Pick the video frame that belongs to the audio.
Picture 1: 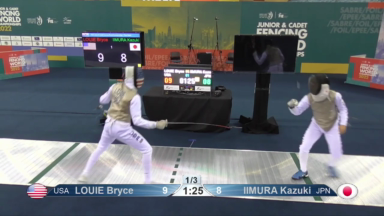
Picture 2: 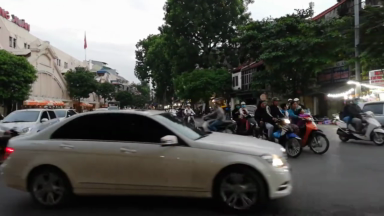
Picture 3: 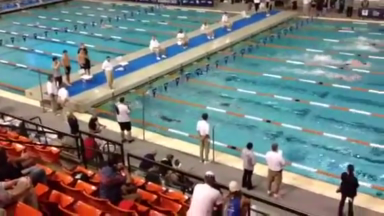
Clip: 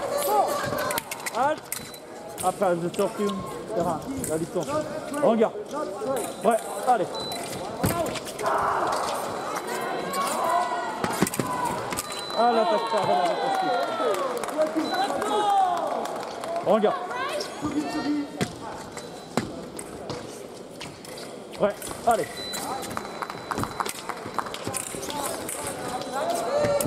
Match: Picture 1